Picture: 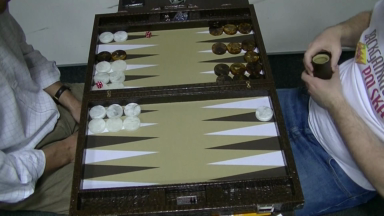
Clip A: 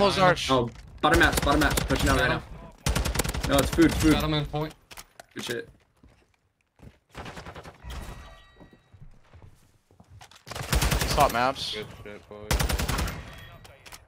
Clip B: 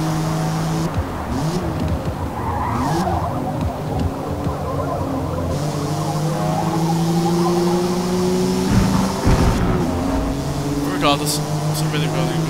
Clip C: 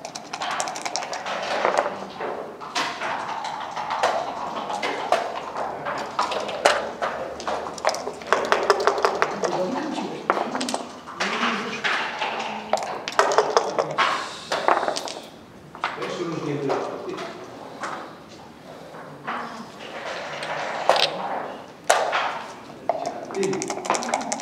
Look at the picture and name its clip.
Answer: C